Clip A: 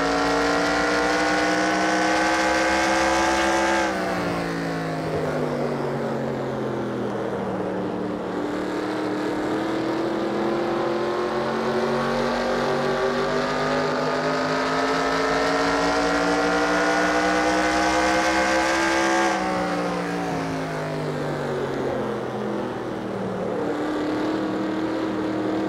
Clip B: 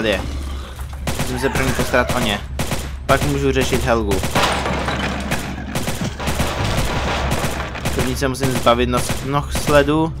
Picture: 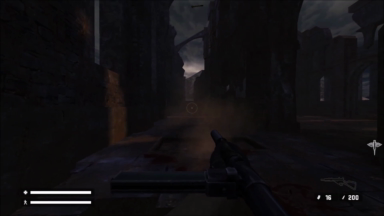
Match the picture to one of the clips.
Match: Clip B